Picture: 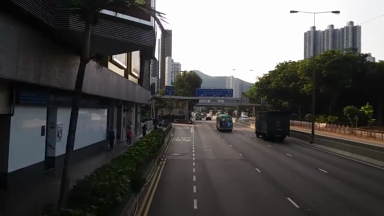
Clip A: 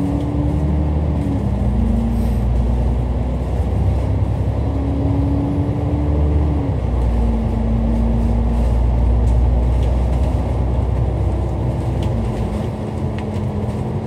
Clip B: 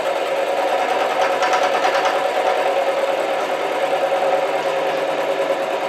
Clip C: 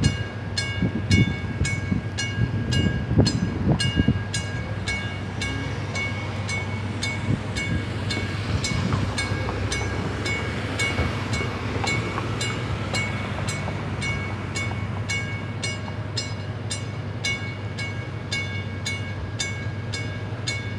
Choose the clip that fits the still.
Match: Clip A